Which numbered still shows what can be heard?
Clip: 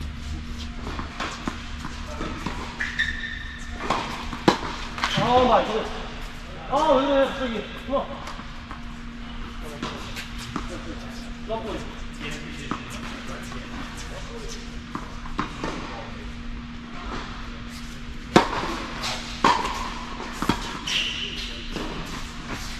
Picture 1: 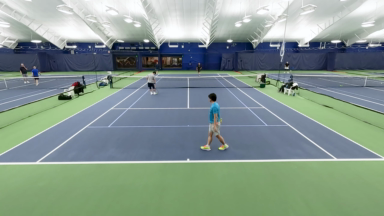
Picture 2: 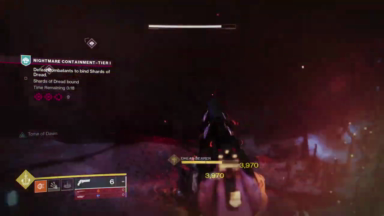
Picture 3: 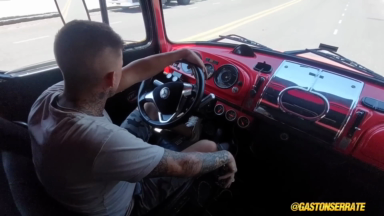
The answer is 1